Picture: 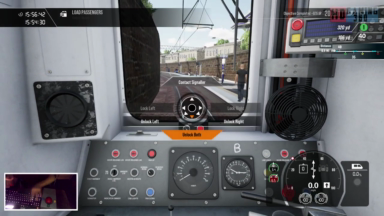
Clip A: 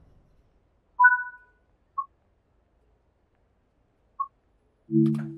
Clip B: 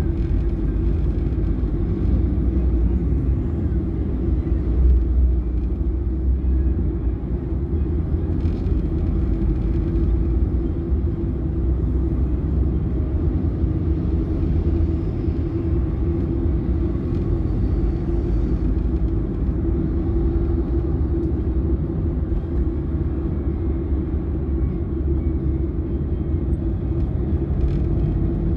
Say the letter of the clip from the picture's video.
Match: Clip A